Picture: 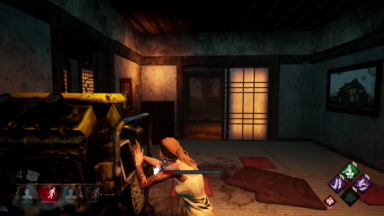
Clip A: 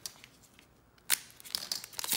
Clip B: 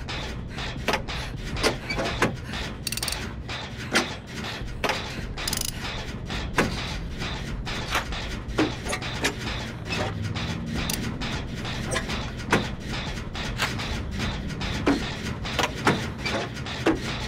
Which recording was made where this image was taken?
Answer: B